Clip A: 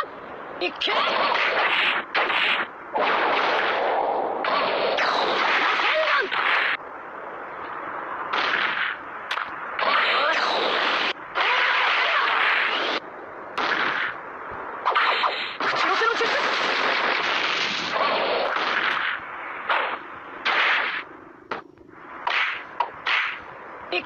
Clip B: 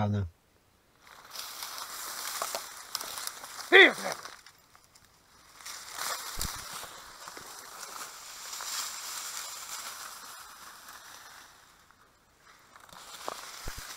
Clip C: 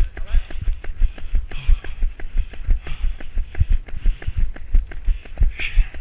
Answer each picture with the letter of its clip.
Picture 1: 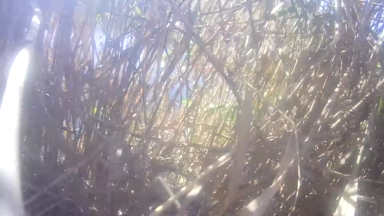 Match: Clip B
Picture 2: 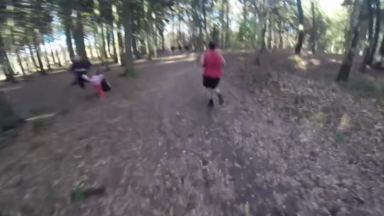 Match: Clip C